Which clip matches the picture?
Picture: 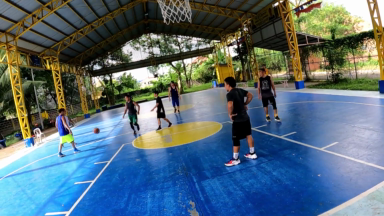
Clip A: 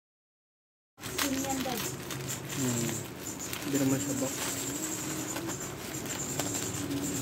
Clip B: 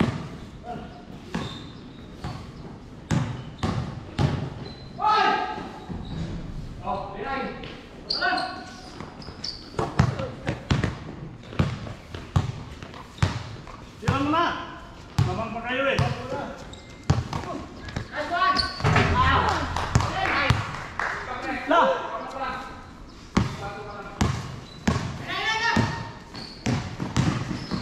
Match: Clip B